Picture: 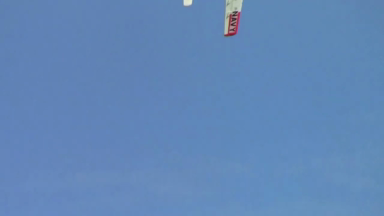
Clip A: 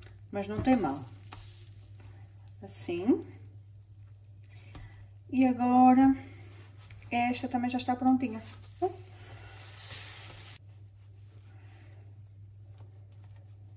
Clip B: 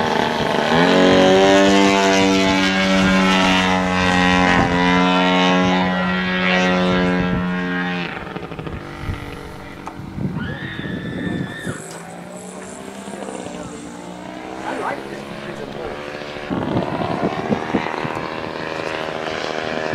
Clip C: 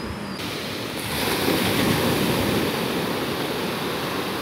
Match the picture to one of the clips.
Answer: B